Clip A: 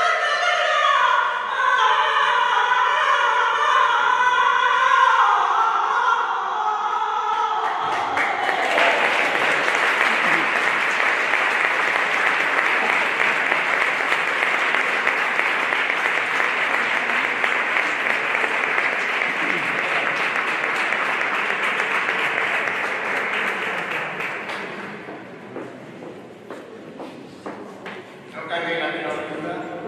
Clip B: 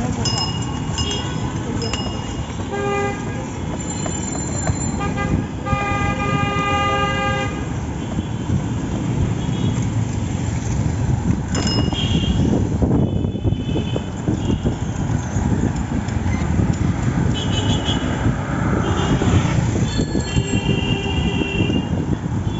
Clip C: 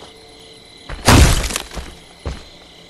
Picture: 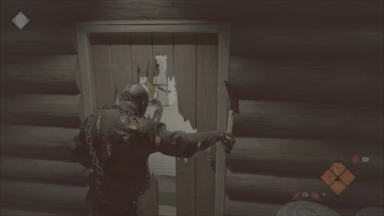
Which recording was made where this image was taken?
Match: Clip C